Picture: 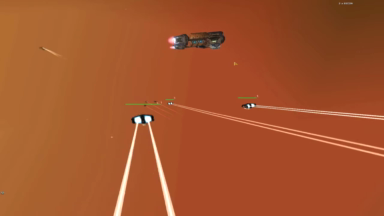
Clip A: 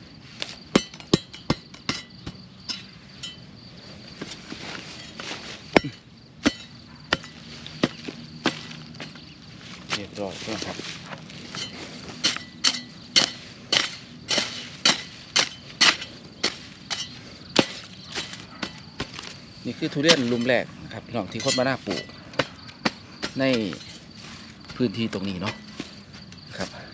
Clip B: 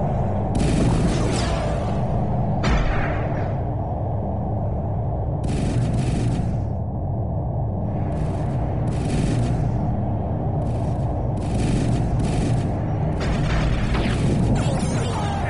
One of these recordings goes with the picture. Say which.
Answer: B